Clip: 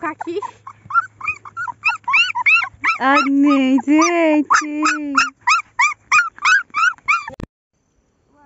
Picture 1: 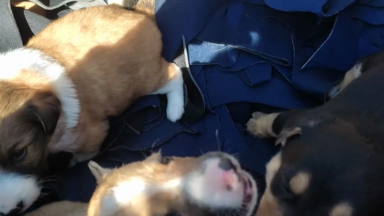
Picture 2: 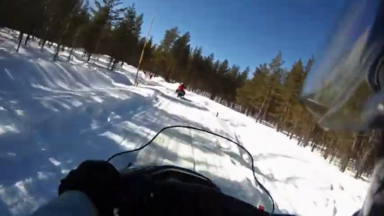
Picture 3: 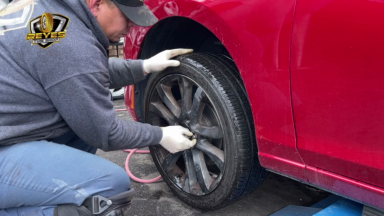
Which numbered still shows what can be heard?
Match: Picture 1